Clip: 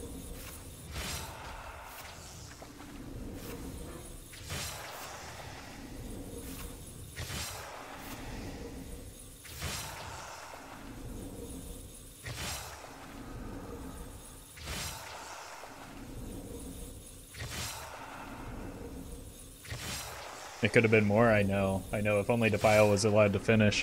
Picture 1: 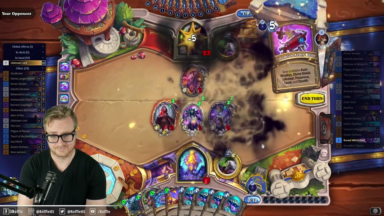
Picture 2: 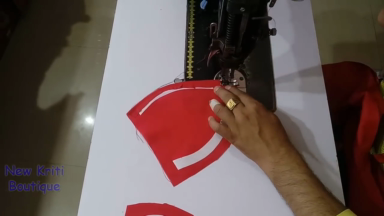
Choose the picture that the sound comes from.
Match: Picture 1